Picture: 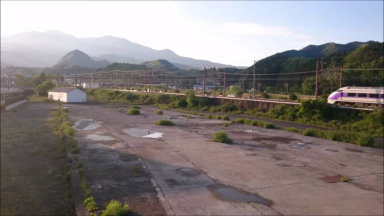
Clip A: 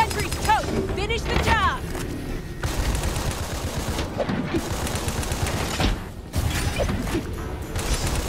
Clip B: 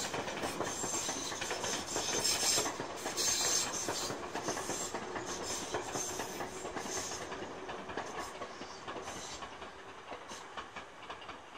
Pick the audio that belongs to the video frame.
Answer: B